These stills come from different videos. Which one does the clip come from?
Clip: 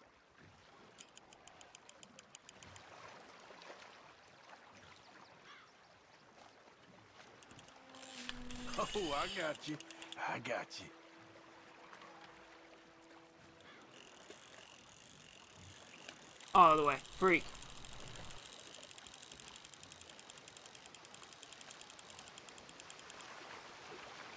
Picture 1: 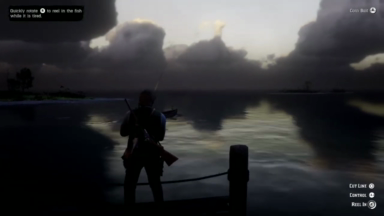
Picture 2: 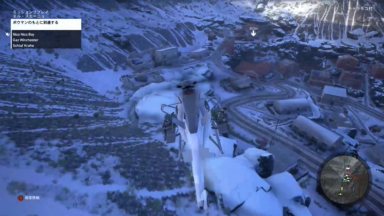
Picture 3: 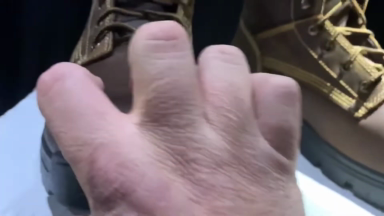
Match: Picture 1